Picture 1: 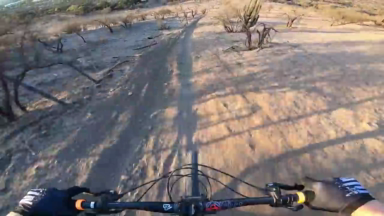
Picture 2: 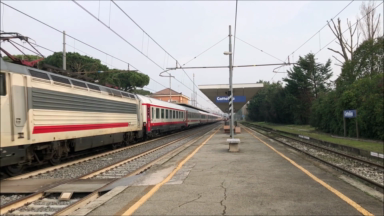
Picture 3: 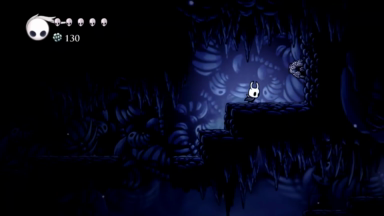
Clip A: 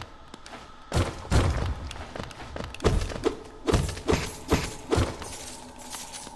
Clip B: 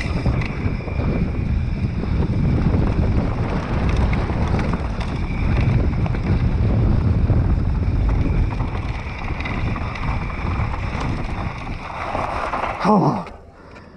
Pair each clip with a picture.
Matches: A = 3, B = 1